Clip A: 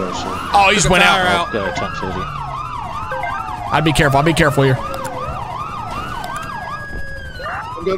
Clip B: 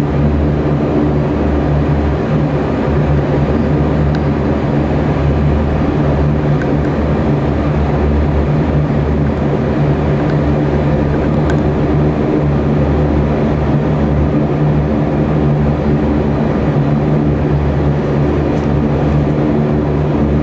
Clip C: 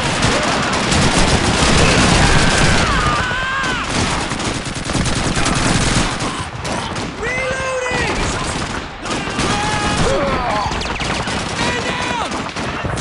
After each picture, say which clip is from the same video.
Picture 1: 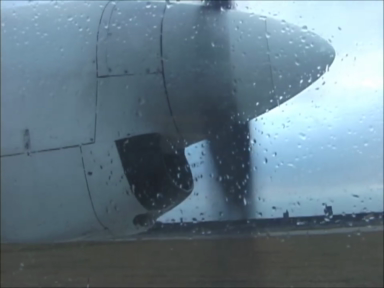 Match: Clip B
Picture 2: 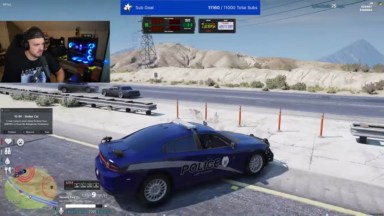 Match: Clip A